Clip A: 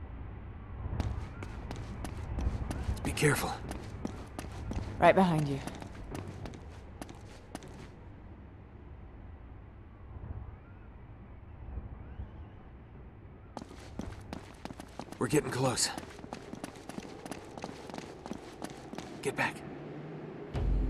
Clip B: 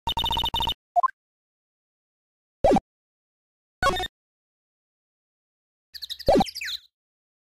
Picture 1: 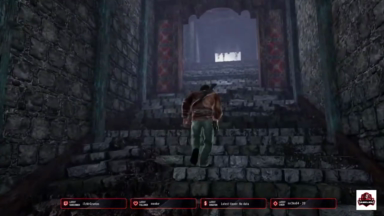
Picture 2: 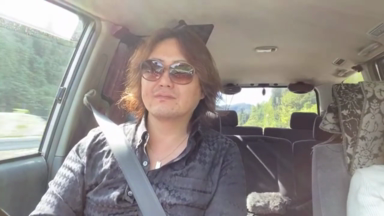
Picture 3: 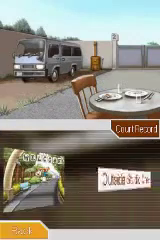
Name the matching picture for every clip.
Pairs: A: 1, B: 3